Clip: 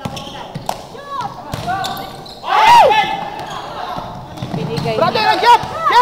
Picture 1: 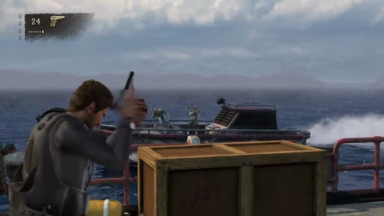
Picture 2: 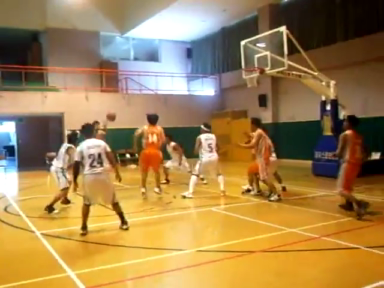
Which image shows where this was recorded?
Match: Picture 2